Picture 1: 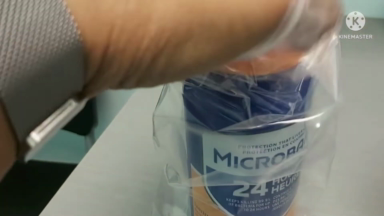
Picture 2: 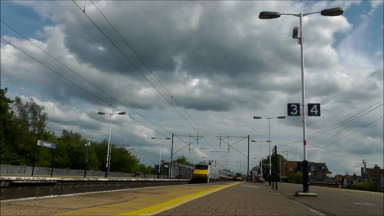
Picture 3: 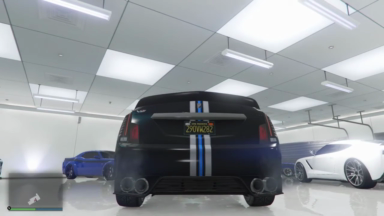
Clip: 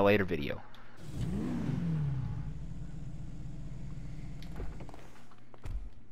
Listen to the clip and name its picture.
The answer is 3